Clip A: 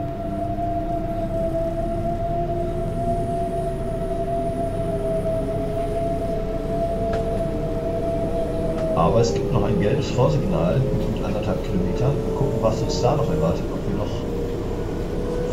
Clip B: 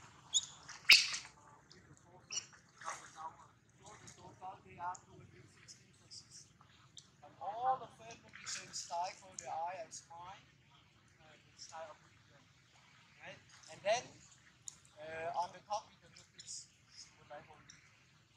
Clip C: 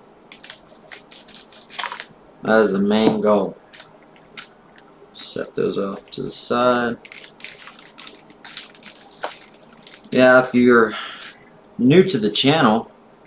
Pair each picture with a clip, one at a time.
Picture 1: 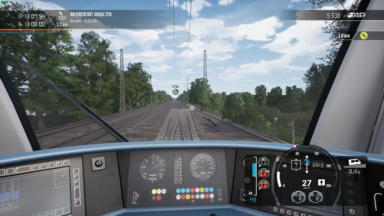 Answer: A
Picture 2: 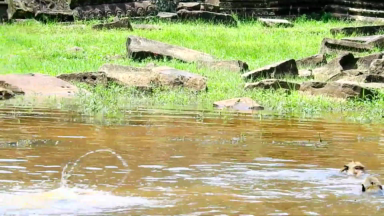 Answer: B